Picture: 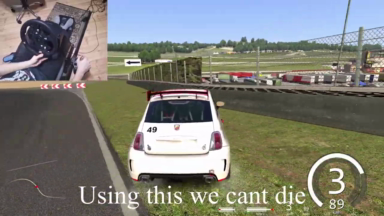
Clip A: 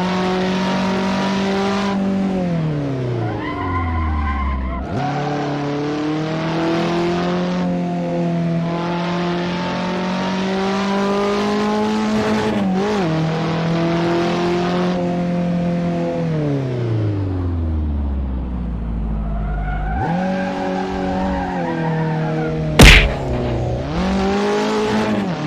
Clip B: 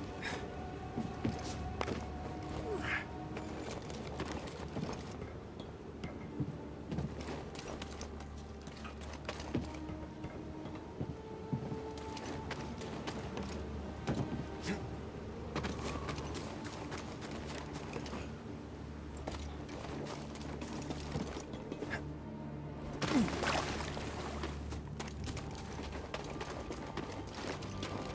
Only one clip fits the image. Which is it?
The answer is A